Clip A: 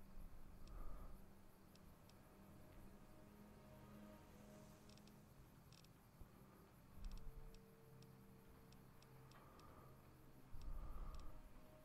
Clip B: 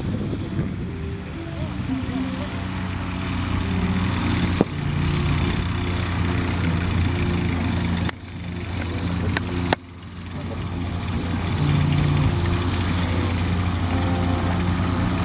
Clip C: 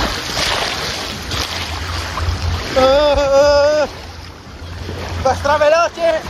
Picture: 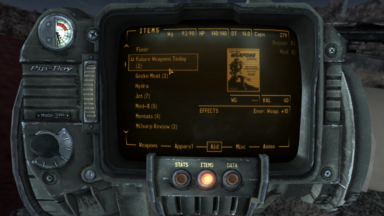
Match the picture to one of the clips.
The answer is A